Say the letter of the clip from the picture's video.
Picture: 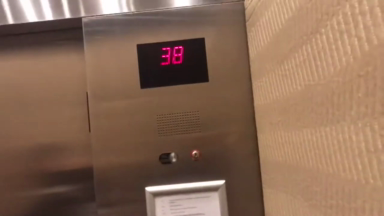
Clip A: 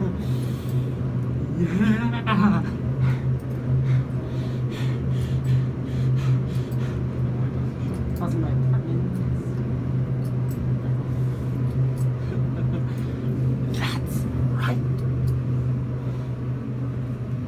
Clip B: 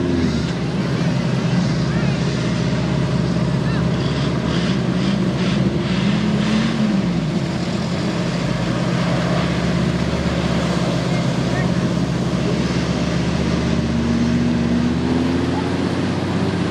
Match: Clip A